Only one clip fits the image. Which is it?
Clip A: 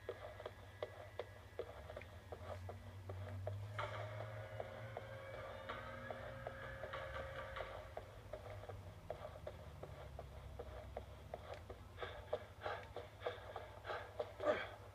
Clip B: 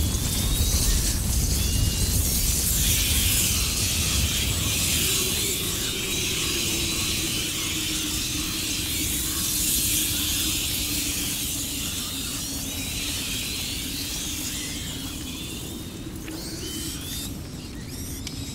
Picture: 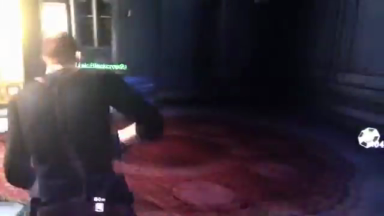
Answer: A